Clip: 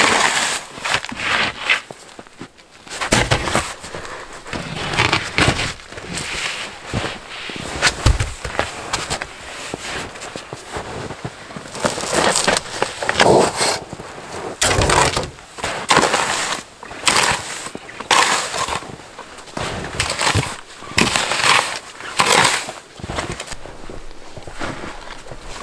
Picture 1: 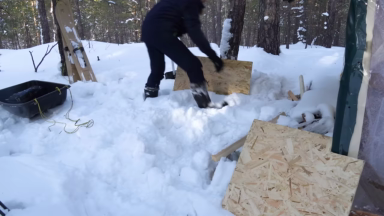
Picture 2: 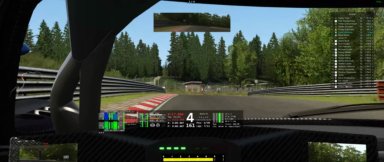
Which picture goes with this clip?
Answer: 1